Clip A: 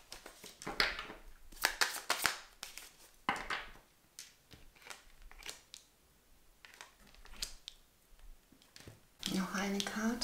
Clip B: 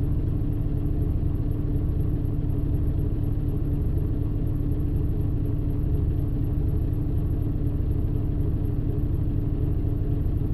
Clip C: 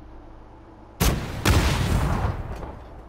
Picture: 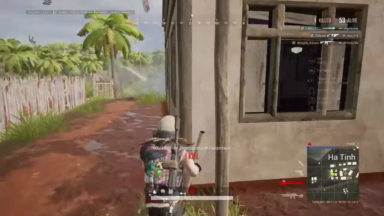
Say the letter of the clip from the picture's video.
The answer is C